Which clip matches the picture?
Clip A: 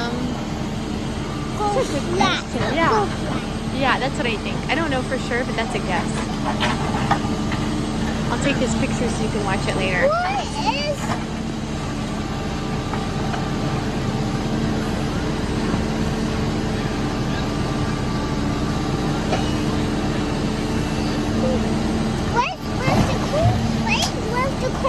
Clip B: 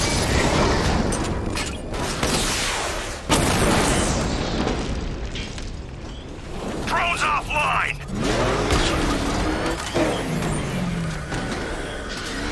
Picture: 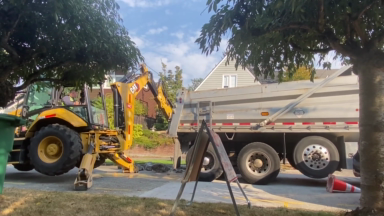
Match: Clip A